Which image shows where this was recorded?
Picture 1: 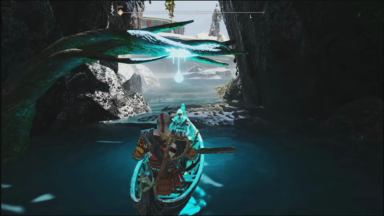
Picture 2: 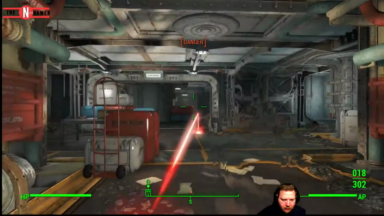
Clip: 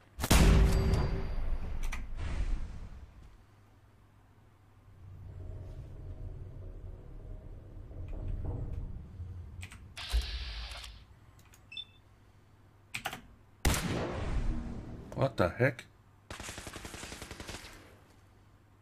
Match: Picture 2